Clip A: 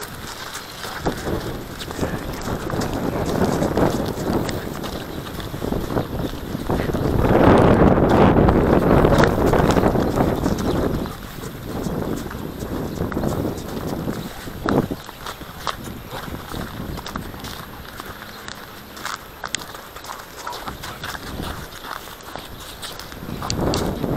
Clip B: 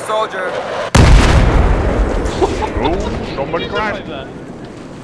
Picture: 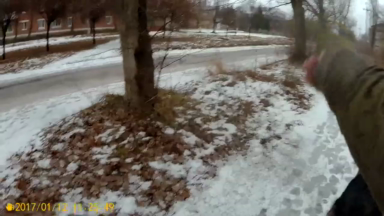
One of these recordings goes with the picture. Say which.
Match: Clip A